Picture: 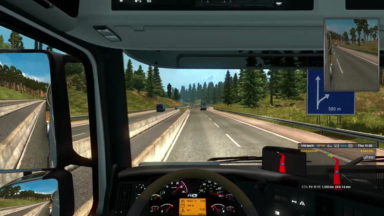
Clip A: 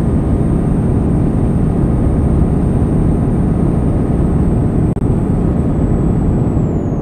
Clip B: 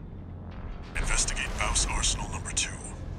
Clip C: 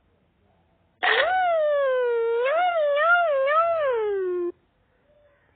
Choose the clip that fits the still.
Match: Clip A